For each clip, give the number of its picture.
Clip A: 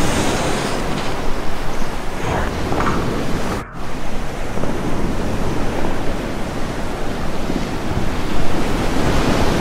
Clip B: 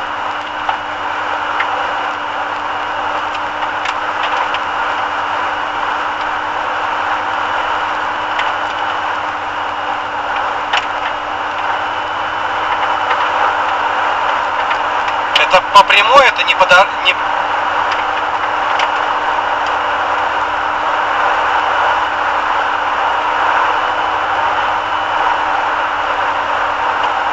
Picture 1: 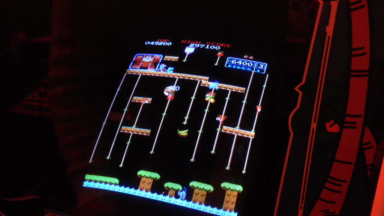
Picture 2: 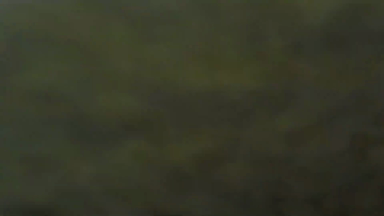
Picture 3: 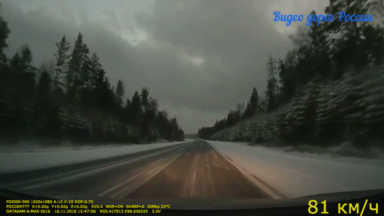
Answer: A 2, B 3